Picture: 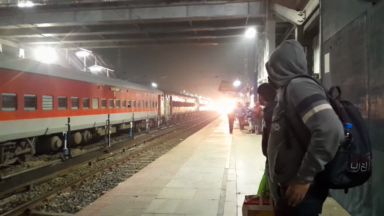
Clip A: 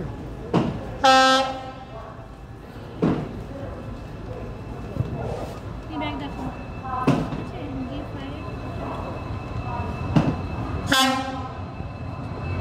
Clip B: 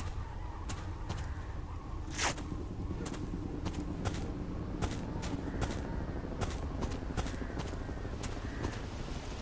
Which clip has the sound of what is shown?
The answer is A